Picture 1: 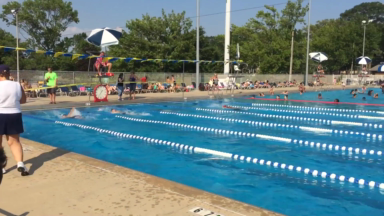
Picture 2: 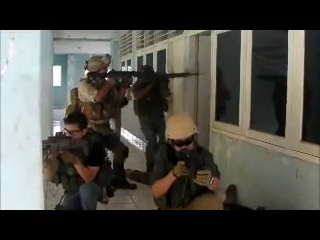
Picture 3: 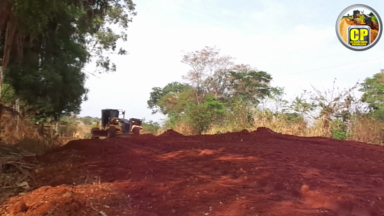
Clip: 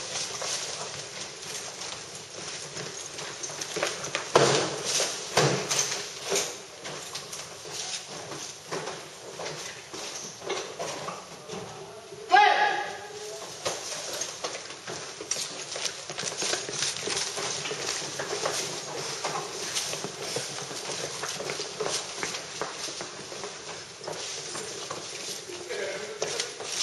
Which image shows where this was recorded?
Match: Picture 2